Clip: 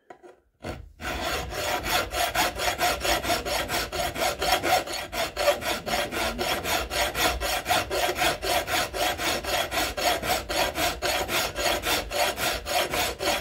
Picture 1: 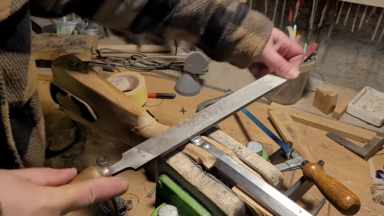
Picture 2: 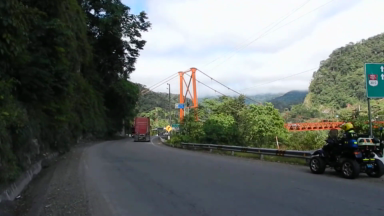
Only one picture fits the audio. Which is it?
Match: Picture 1